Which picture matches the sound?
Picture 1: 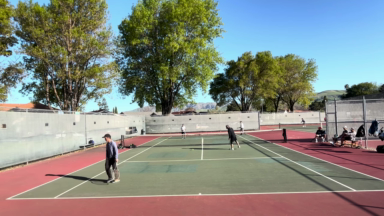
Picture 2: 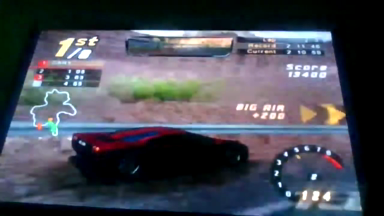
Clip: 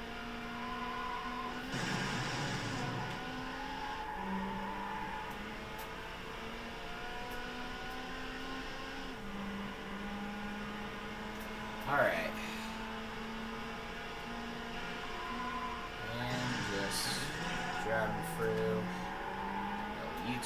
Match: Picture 2